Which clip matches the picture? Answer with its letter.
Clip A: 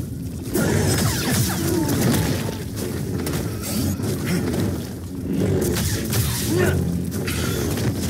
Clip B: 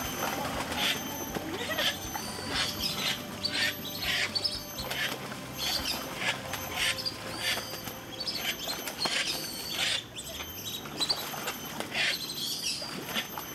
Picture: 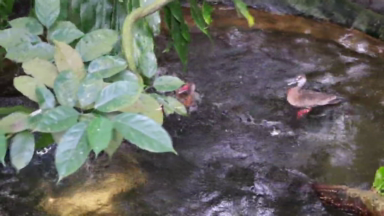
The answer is B